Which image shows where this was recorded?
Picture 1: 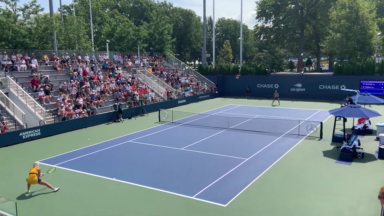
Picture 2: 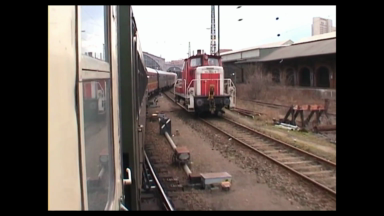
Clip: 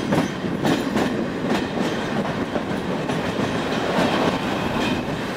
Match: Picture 2